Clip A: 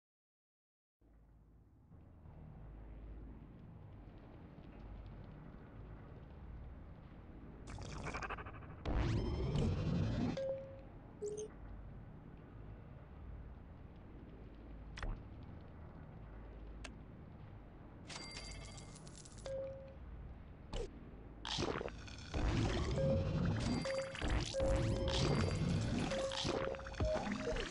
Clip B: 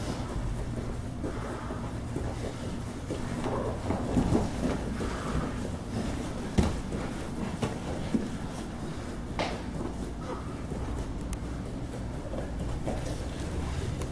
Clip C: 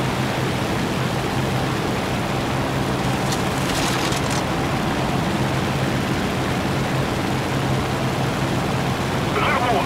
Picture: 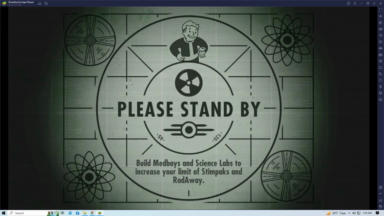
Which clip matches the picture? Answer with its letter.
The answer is A